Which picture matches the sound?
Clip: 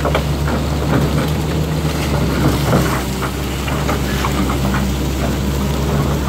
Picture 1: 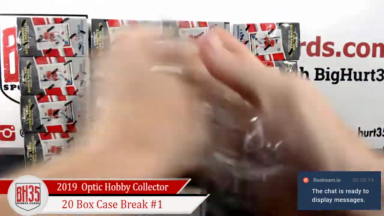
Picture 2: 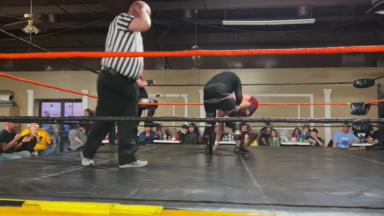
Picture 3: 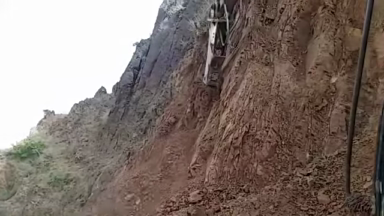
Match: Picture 3